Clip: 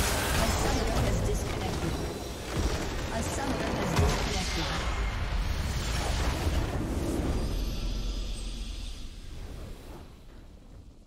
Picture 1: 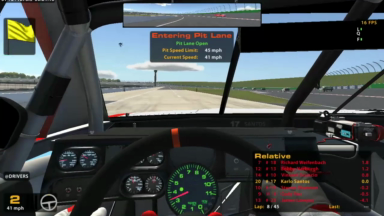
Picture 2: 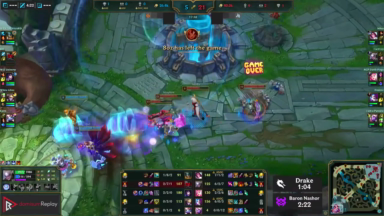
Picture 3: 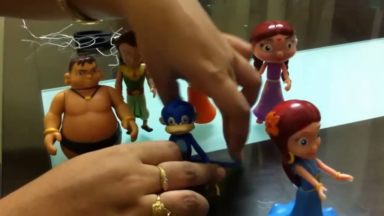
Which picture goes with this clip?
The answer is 2